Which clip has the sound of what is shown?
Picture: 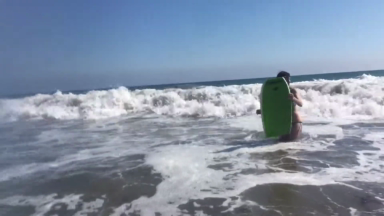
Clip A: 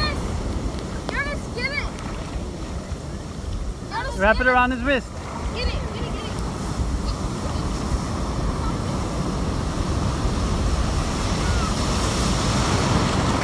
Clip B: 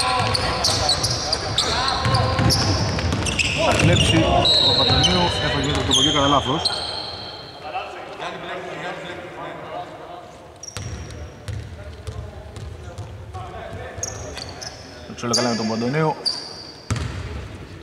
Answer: A